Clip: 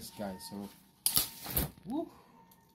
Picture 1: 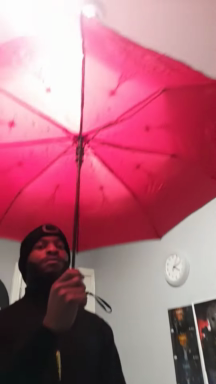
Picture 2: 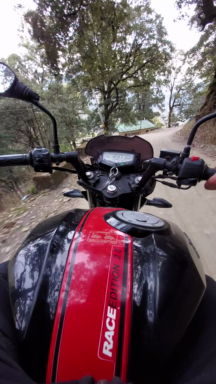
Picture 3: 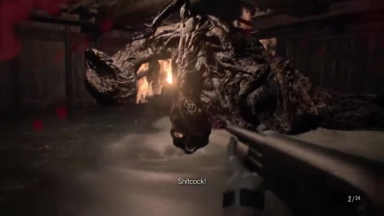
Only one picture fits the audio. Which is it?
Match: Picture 1